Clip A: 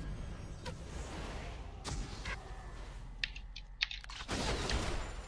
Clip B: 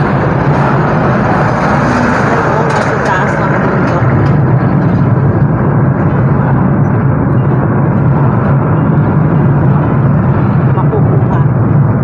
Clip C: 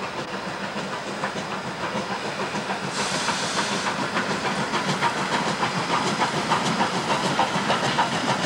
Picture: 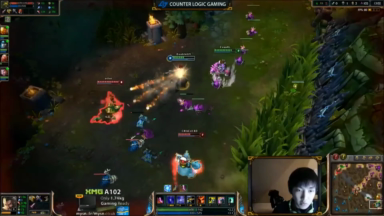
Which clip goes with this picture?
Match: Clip A